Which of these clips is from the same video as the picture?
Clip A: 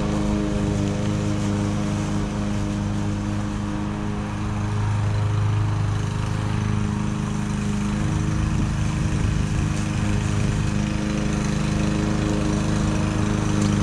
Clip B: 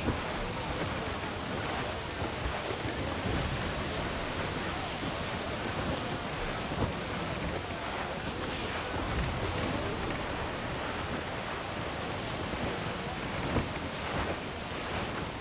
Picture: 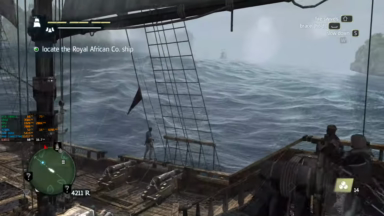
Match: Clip B